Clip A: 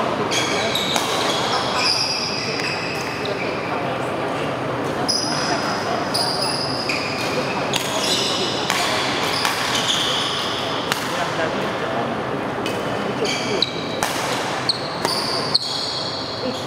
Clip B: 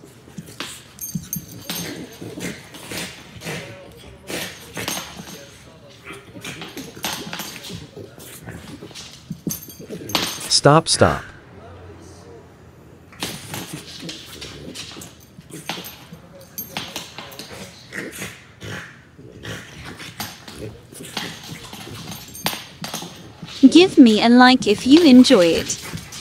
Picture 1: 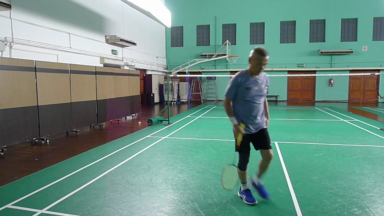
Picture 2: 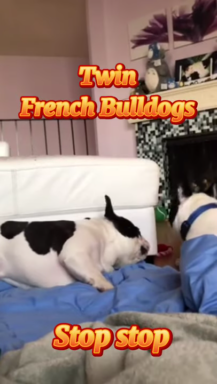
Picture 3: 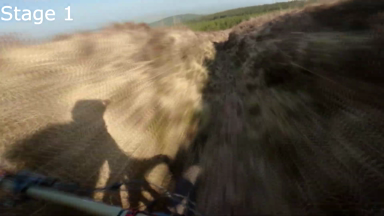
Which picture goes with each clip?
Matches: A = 1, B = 2